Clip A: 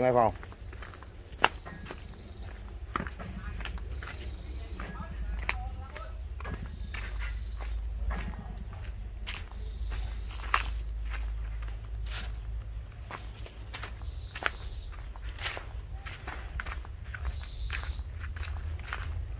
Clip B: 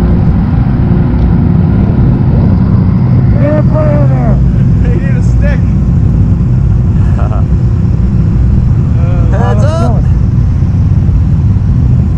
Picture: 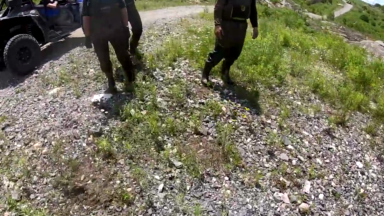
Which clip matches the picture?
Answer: B